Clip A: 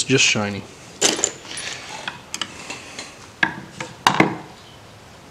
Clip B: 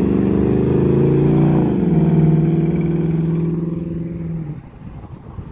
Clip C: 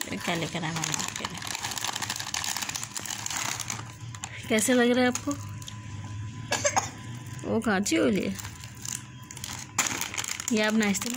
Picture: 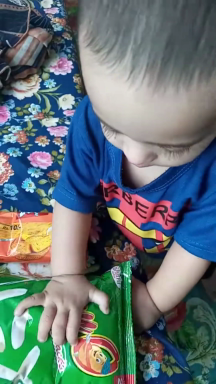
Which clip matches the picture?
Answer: C